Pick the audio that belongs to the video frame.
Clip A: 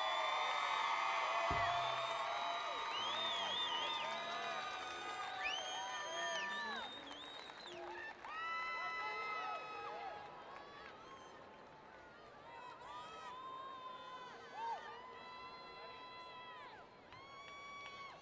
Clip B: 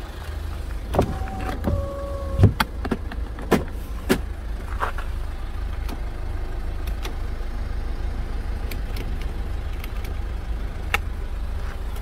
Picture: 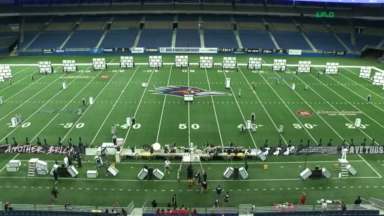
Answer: A